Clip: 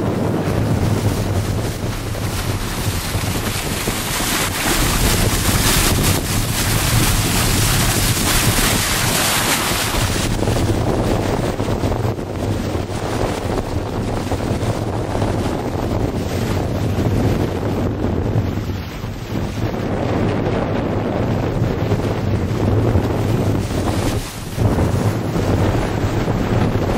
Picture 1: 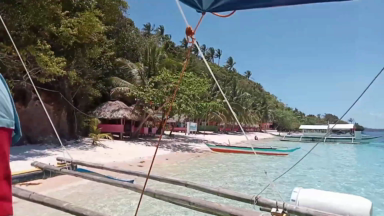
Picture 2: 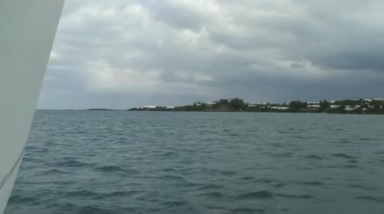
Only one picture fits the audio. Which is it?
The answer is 2